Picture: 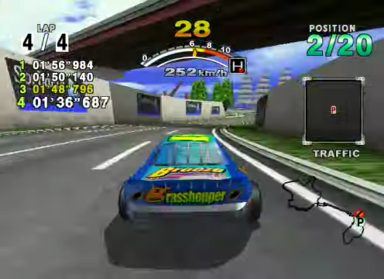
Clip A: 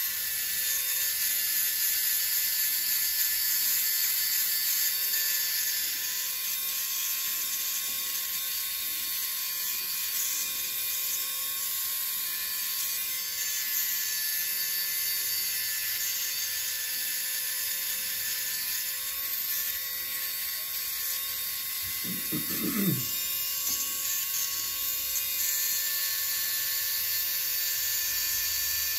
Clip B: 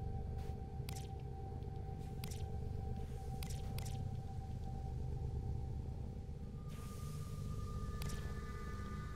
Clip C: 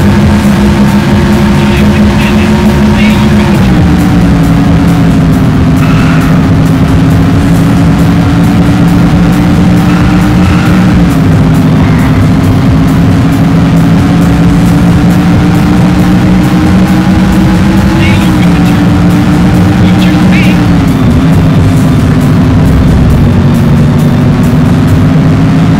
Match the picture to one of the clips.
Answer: C